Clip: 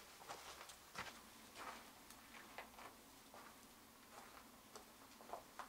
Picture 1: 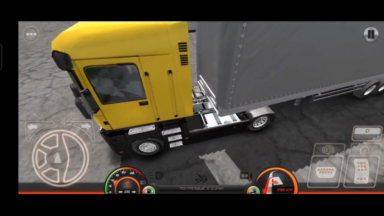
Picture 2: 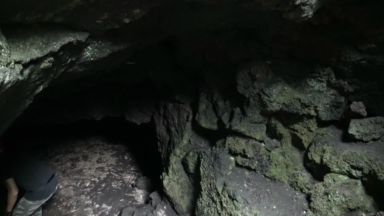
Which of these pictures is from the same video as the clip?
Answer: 2